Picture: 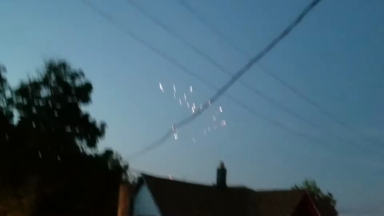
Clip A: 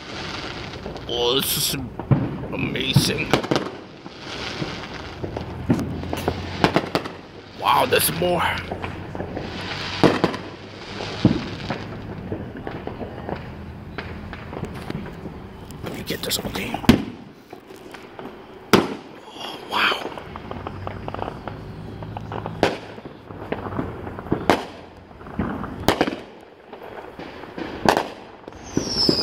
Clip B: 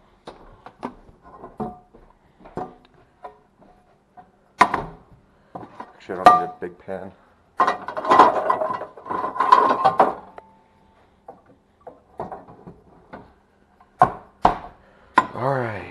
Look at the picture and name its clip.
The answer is A